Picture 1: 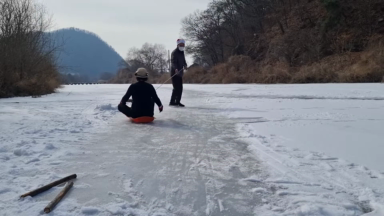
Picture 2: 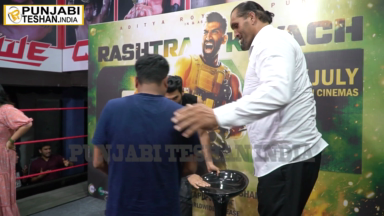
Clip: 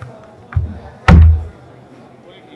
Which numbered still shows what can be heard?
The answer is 2